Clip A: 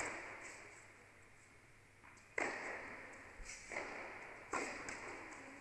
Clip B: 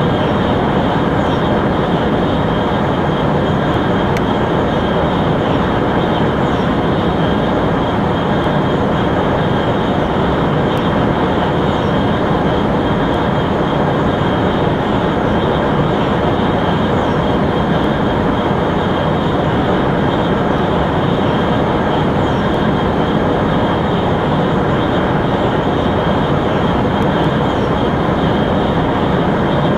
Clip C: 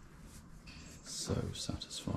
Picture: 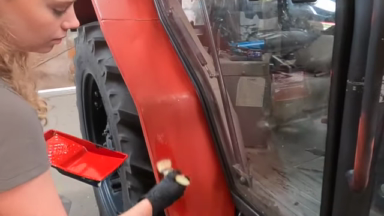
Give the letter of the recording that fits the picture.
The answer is C